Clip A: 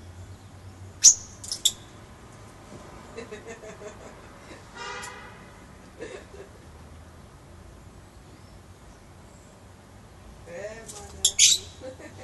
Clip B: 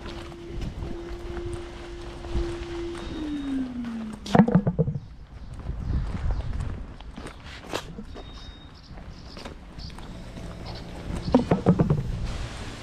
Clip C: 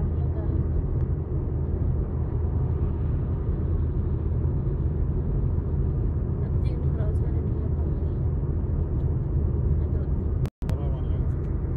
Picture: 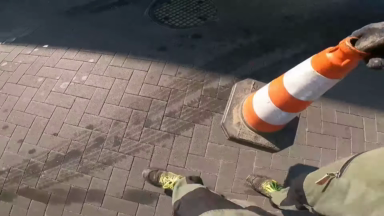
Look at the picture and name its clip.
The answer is B